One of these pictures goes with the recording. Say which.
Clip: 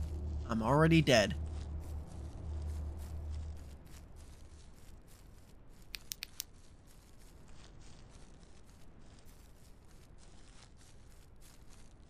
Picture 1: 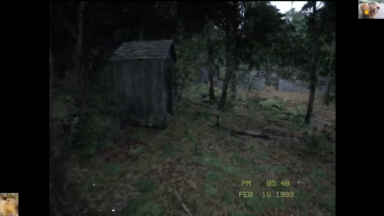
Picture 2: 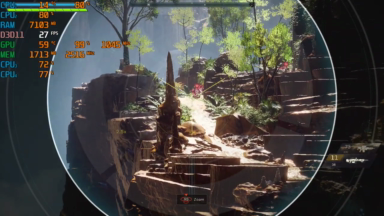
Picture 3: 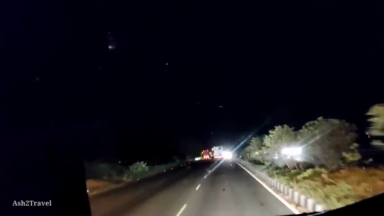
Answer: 1